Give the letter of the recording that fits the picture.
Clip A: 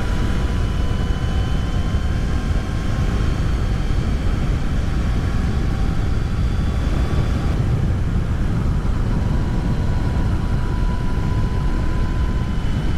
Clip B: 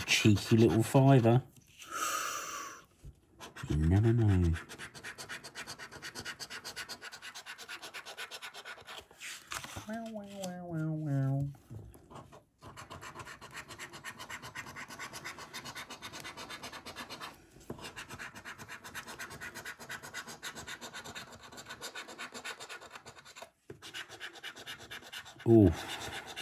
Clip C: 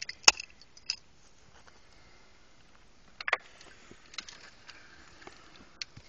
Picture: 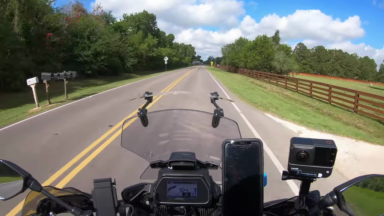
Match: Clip A